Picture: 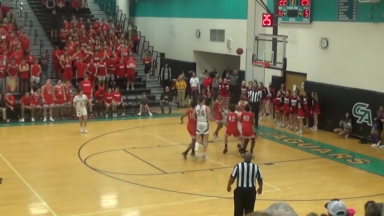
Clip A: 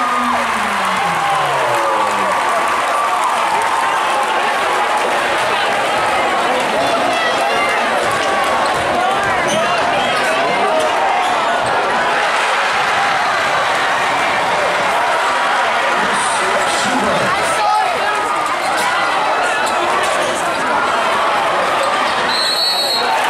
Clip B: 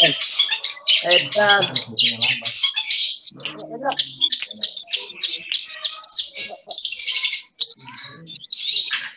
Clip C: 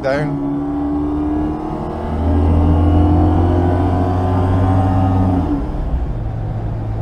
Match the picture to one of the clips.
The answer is A